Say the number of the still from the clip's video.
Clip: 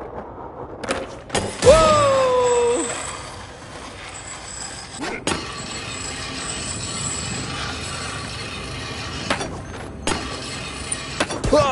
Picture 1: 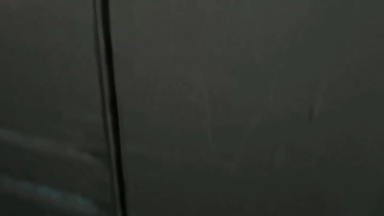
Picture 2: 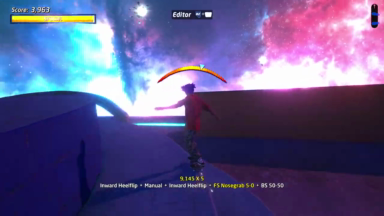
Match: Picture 2